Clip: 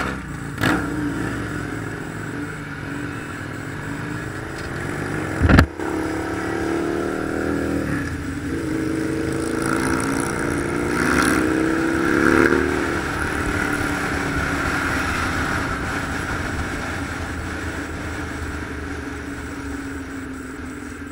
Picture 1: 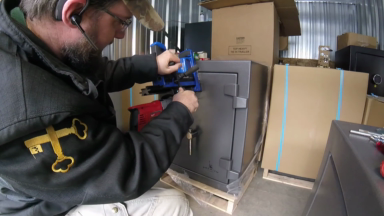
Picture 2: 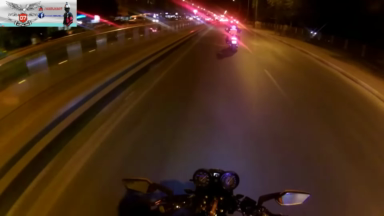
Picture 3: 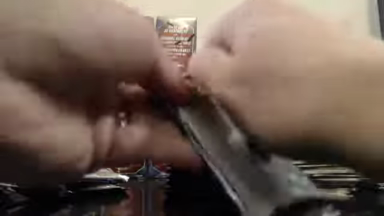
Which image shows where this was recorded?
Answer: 2